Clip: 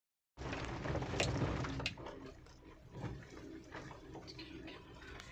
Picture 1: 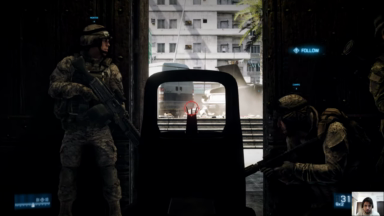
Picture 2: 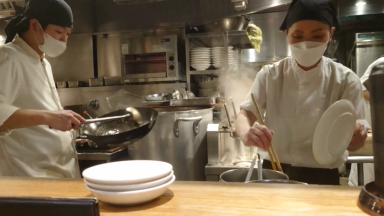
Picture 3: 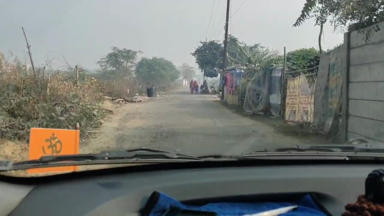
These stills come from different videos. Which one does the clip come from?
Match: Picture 3